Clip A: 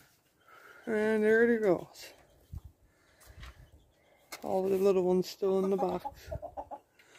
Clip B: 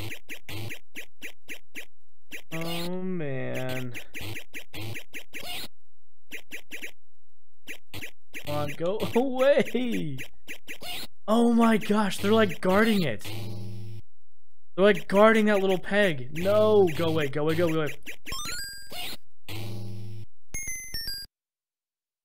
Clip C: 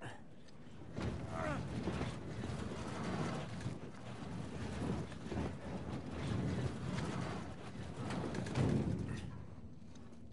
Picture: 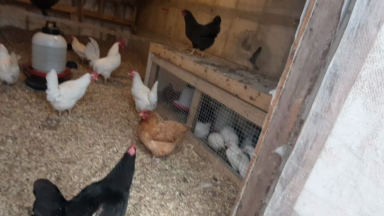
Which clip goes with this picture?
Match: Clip A